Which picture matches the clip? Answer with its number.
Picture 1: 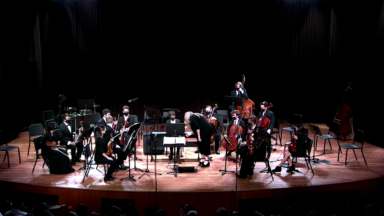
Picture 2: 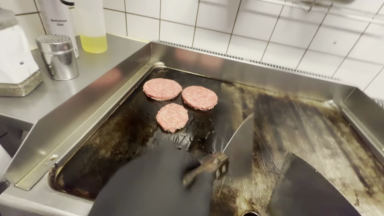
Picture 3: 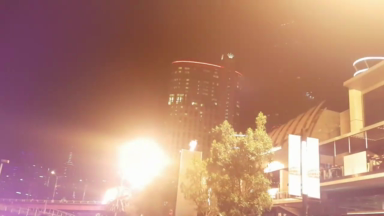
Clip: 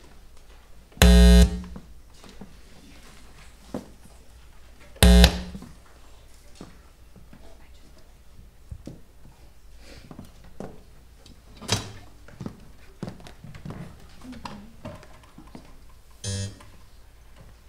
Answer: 1